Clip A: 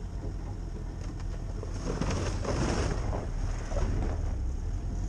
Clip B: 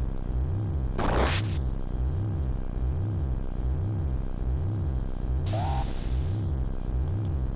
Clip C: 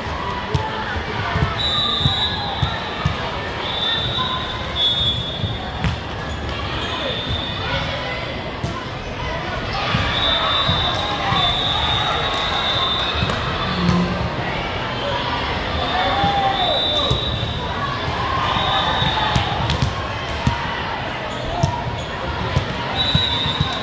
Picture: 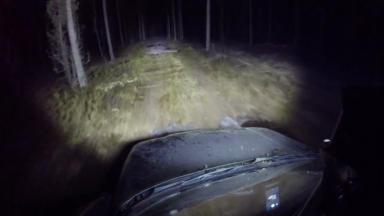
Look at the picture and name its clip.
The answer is A